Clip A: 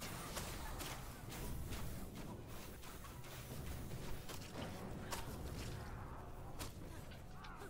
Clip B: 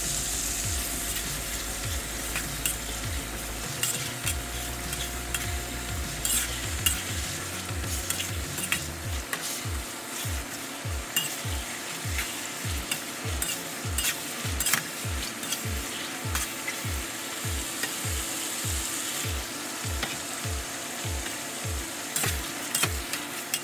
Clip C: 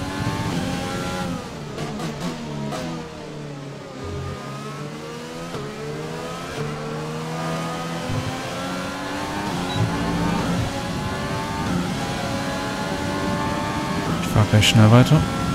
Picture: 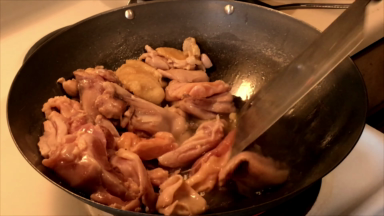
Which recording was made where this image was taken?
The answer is B